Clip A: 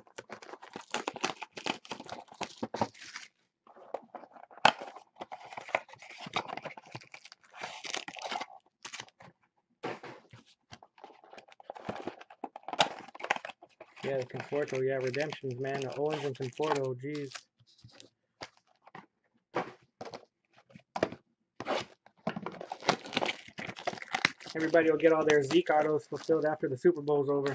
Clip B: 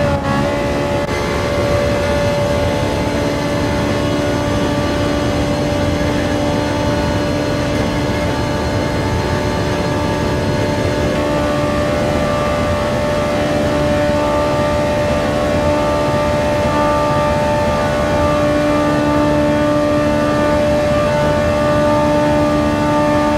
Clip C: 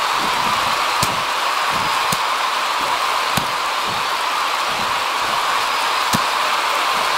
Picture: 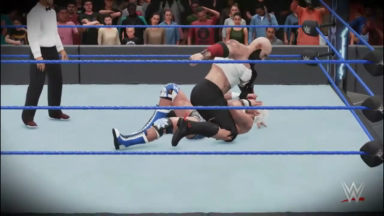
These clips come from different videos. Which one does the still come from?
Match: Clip C